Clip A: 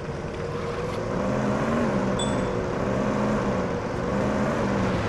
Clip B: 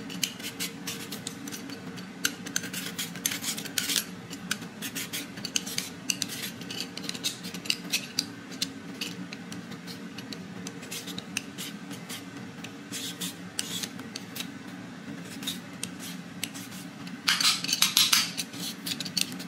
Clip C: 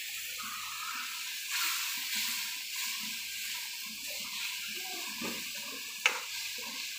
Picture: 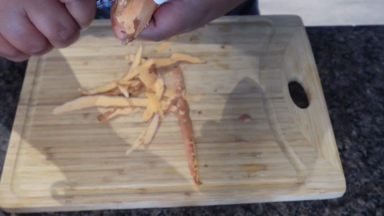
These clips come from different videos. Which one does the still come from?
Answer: B